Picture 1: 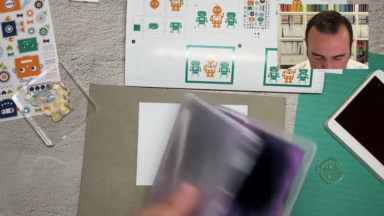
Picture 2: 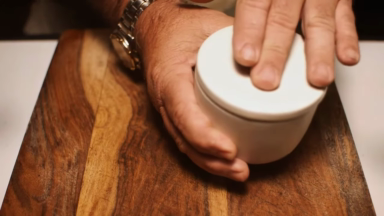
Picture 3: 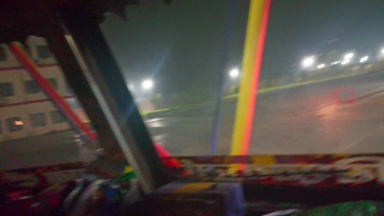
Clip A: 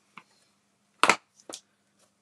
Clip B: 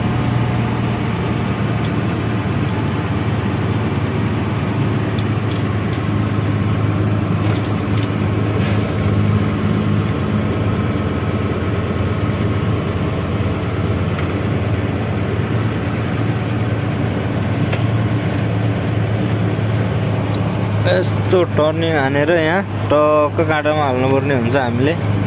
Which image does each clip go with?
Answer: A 1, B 3